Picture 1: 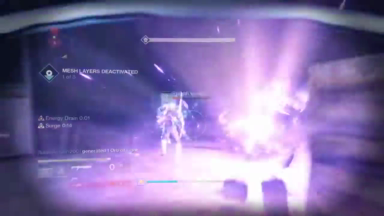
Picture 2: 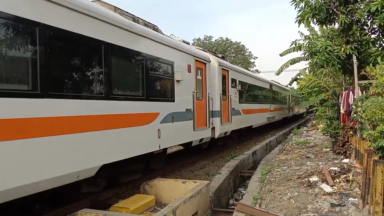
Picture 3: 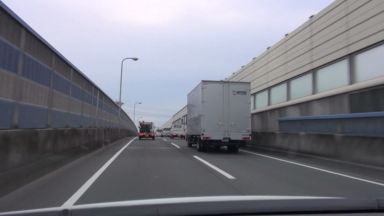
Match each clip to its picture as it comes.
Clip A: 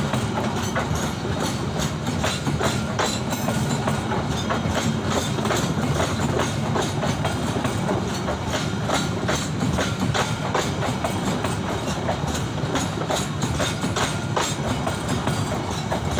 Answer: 2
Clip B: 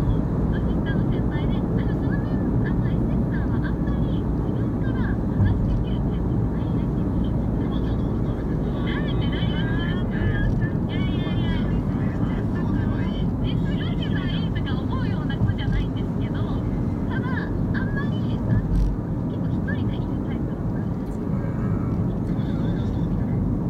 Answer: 3